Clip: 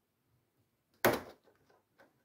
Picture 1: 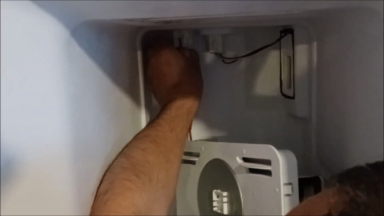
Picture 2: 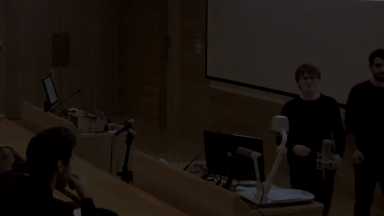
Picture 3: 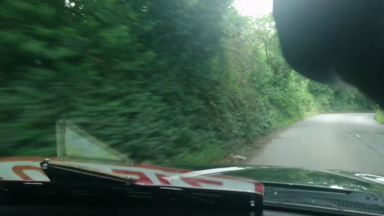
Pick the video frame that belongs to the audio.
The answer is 1